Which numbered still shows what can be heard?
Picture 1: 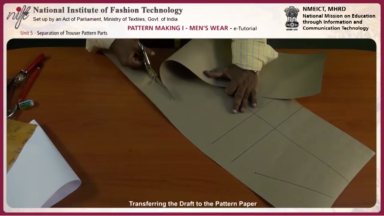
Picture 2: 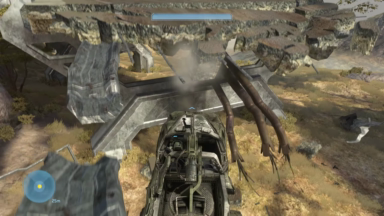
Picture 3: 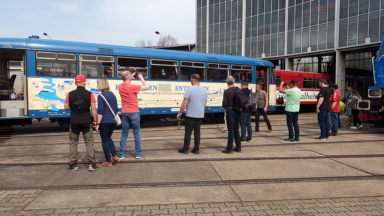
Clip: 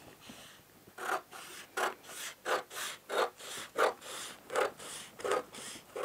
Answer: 1